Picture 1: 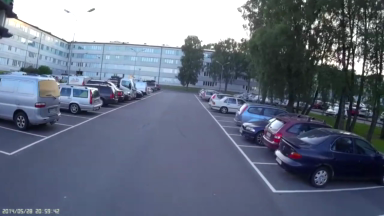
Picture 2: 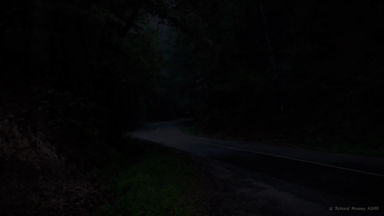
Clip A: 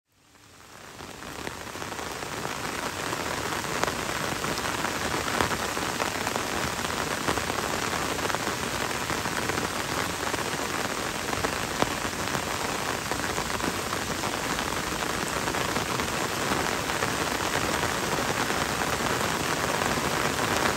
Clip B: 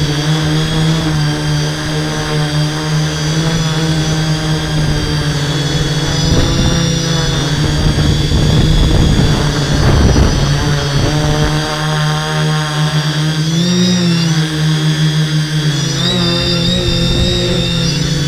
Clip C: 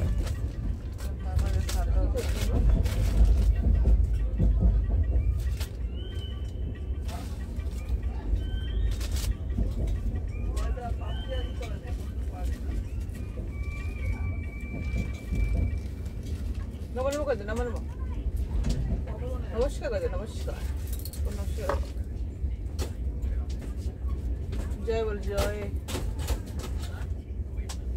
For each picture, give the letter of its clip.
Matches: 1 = B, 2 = A